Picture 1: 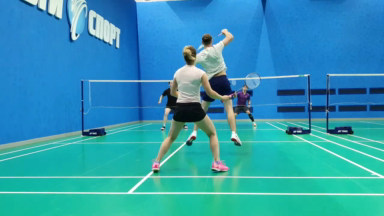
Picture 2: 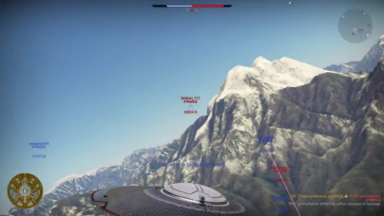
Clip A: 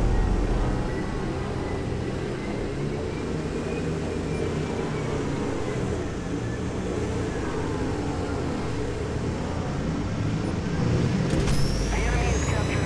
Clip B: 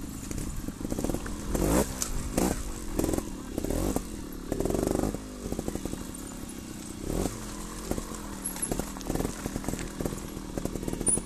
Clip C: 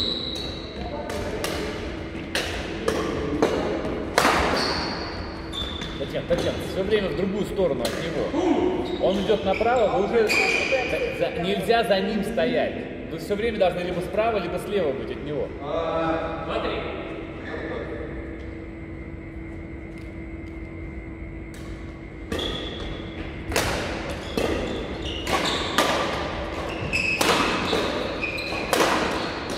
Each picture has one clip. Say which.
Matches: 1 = C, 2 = A